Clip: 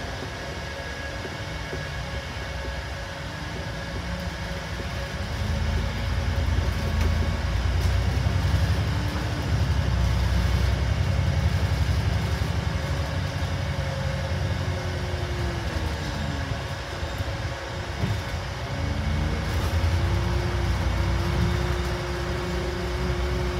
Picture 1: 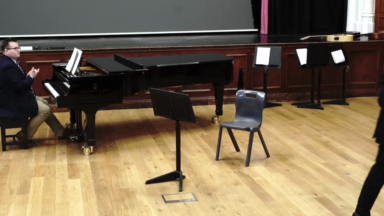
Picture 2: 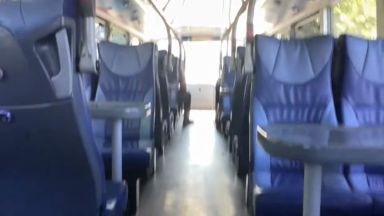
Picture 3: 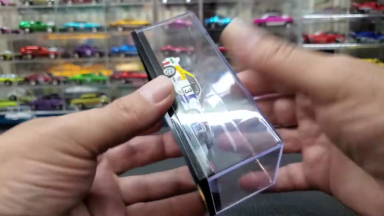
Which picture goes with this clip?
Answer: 2